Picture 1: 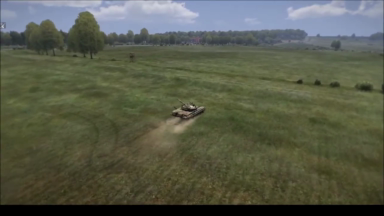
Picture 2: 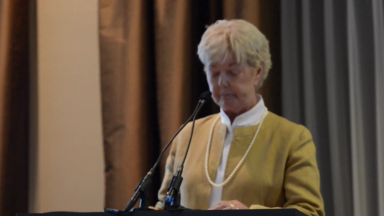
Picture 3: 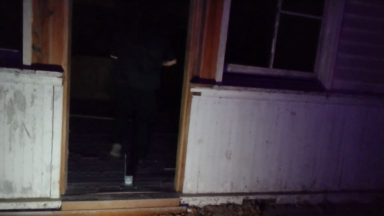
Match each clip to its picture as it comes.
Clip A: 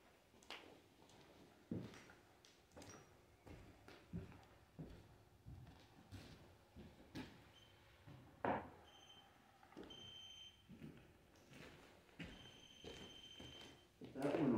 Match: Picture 3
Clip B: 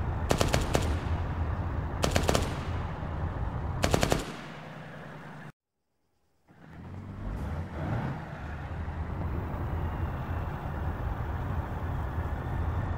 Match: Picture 1